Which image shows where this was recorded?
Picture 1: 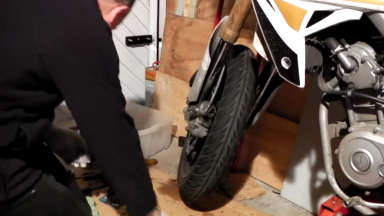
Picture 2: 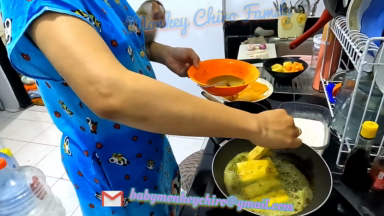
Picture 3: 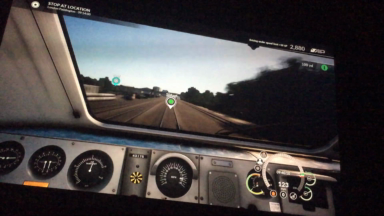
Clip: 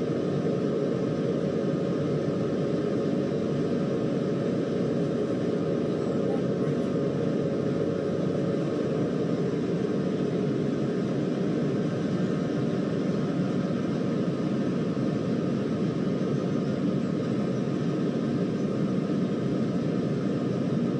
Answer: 3